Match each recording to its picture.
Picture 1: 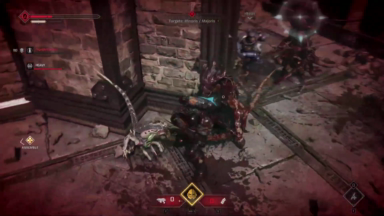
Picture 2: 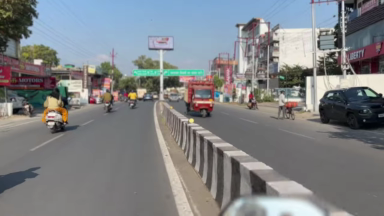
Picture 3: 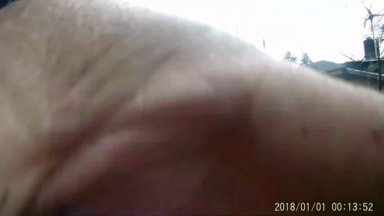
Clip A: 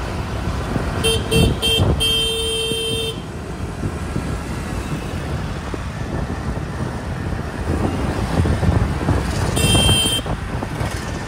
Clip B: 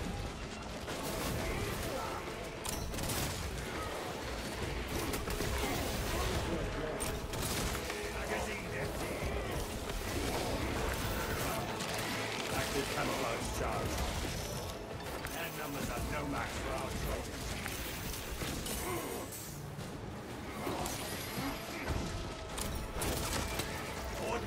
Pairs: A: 2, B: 1